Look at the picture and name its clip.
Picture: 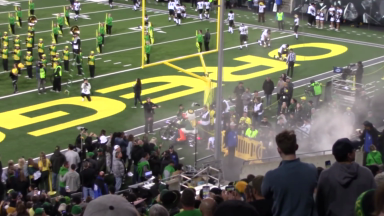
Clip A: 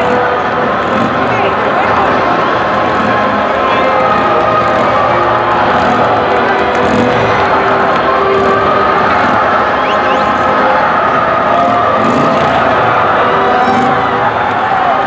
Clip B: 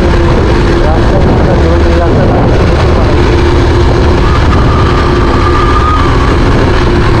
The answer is A